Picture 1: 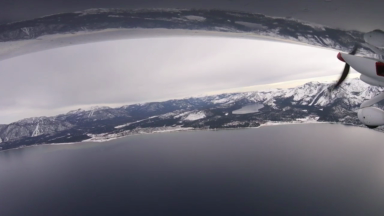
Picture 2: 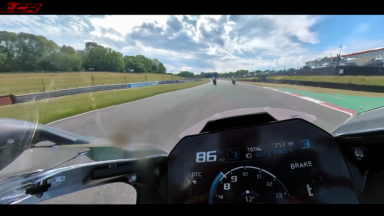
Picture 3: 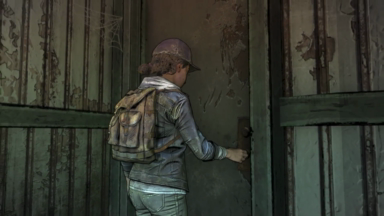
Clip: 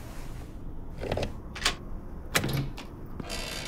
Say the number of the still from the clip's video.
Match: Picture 3